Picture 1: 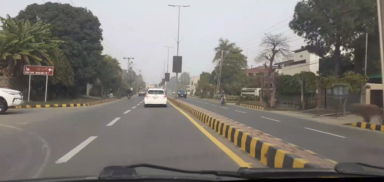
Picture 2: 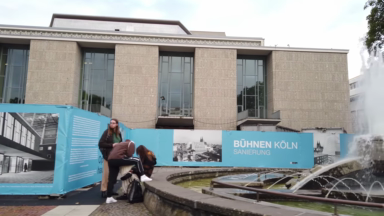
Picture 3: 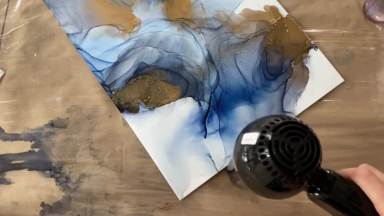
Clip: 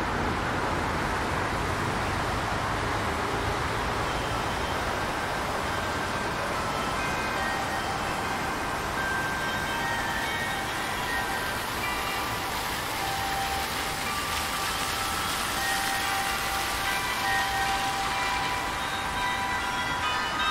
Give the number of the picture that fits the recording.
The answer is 2